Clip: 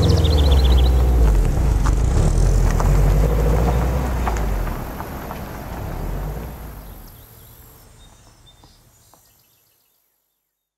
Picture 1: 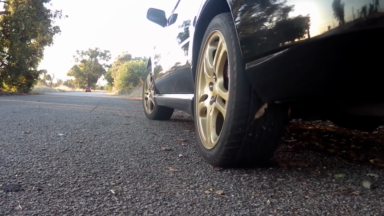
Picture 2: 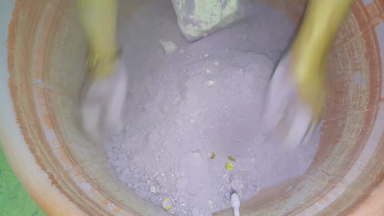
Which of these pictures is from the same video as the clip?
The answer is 1